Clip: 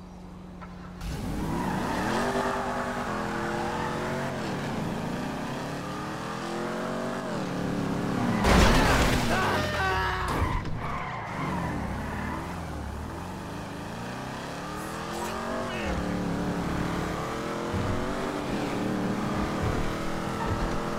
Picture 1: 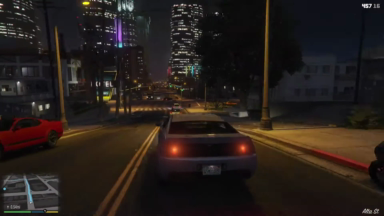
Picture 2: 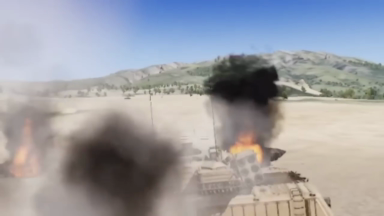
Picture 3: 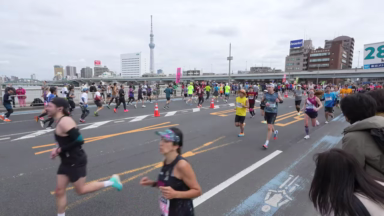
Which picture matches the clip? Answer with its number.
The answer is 1